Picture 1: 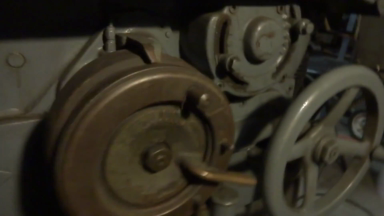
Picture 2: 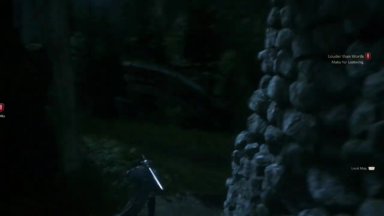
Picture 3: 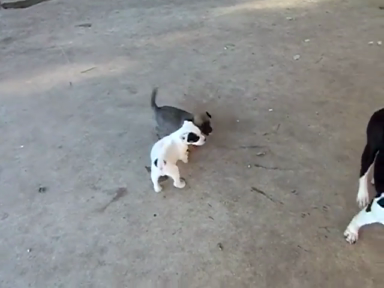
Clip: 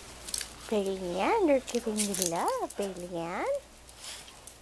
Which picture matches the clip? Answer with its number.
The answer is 3